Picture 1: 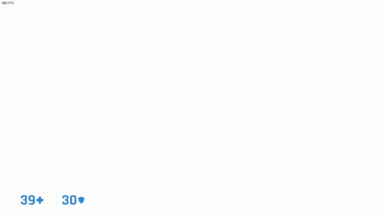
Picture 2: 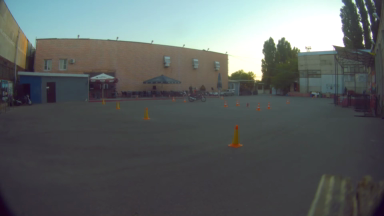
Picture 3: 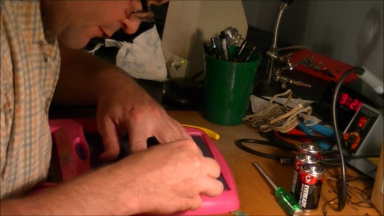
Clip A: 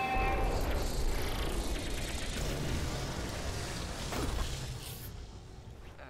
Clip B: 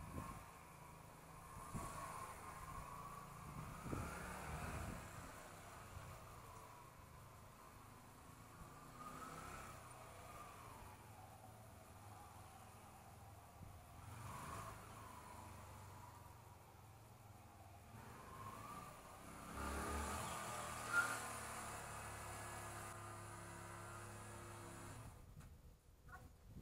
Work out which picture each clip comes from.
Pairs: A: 1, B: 2